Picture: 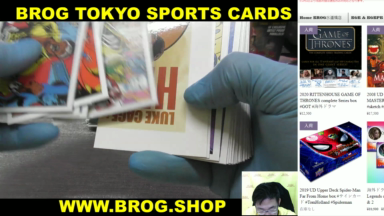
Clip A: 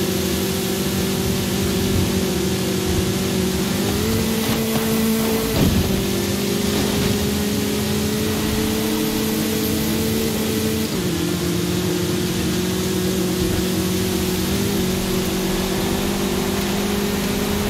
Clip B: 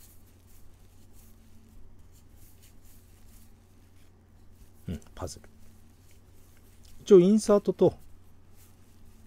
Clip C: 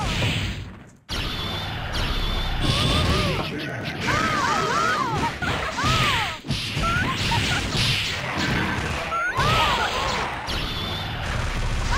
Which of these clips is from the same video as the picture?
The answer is B